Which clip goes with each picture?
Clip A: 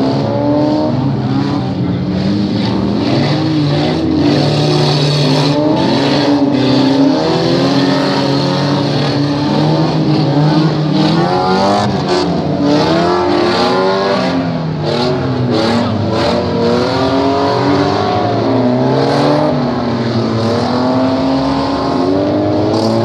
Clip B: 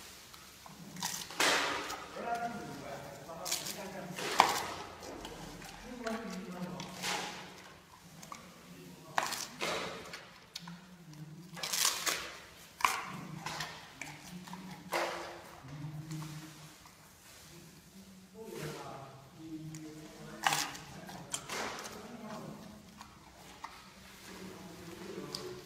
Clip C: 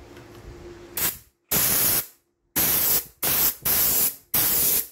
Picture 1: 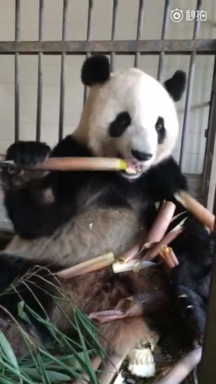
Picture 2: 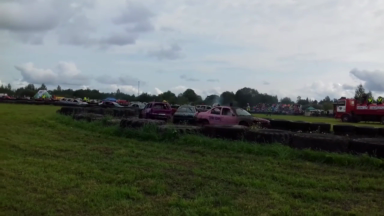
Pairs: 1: B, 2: A